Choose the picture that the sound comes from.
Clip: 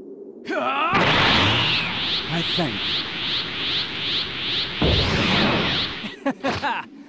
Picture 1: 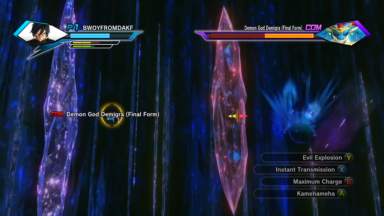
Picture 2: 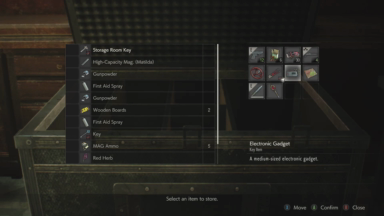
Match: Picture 1